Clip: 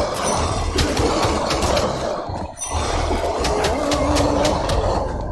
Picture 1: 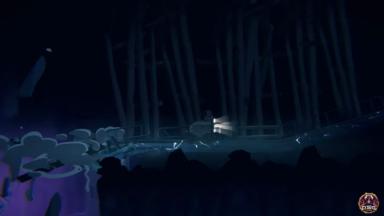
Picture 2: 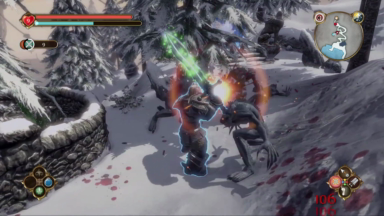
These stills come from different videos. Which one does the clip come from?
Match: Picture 2